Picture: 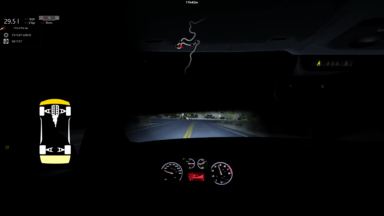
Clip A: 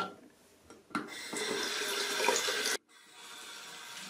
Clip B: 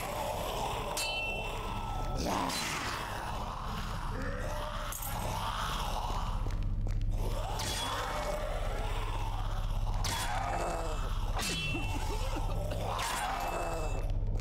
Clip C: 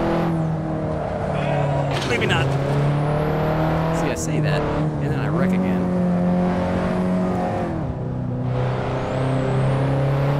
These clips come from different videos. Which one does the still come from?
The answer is C